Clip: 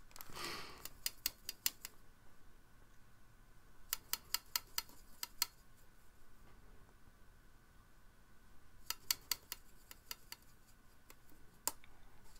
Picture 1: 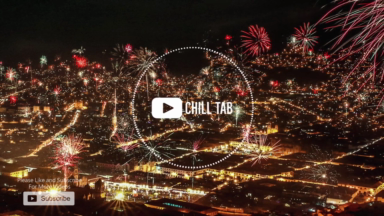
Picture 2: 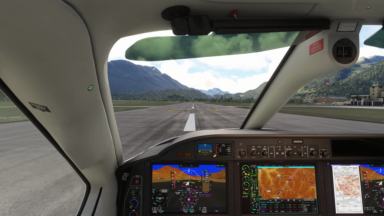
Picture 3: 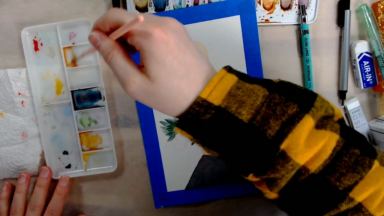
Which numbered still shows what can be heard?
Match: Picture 3